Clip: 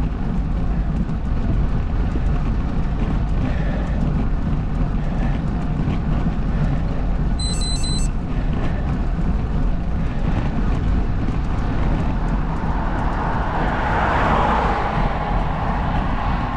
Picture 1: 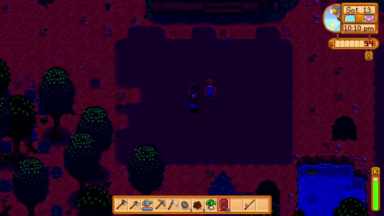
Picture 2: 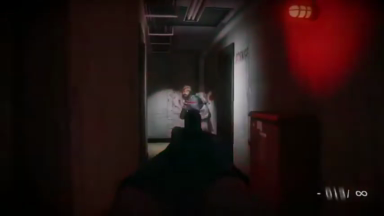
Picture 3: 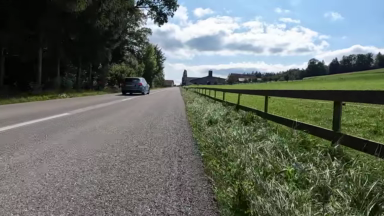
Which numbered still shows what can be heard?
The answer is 3